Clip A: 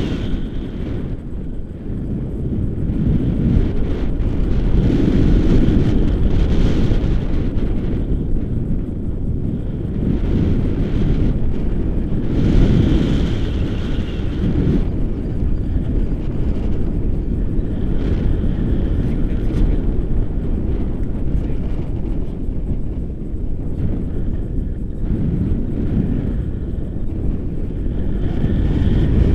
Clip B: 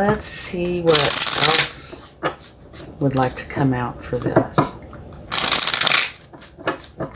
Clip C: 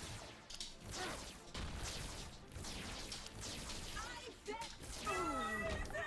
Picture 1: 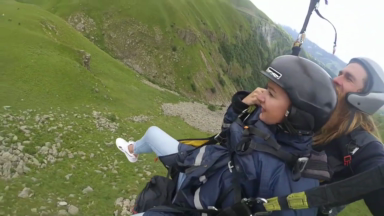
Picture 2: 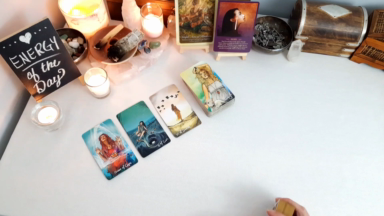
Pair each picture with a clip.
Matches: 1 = A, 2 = B